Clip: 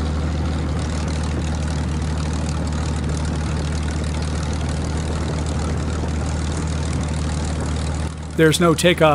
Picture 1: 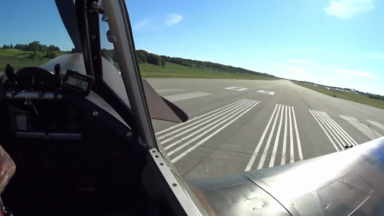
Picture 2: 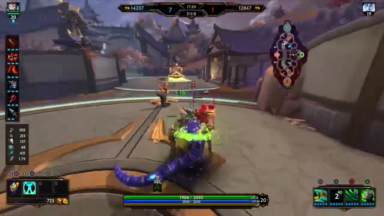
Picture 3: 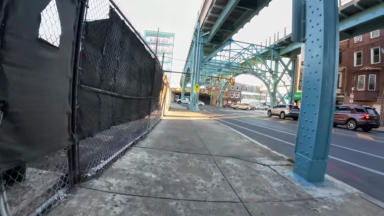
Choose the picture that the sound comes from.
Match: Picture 1